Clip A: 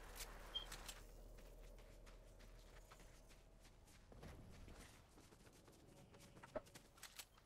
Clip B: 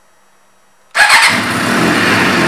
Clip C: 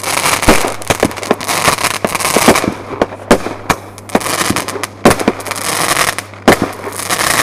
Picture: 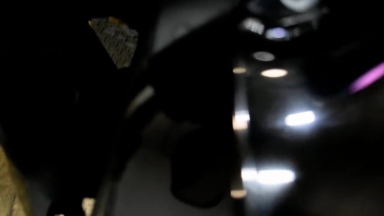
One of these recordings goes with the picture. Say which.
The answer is B